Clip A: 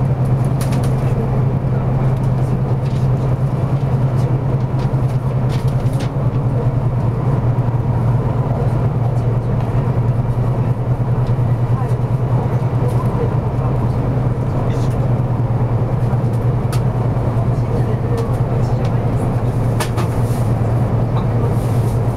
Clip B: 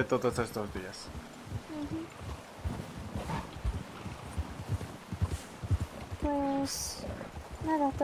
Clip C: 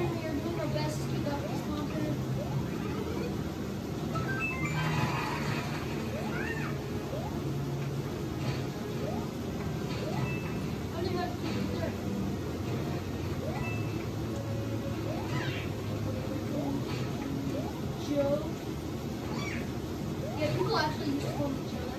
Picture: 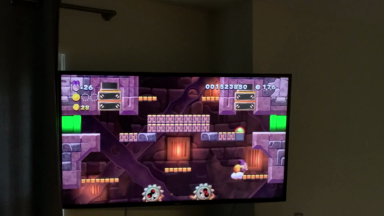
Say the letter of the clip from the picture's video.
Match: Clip C